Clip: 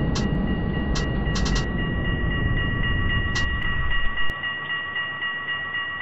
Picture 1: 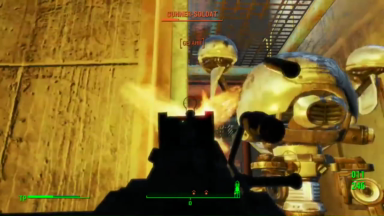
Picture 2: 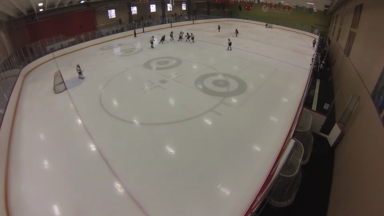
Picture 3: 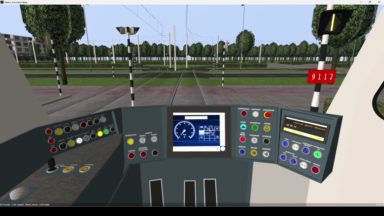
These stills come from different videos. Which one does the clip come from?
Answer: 3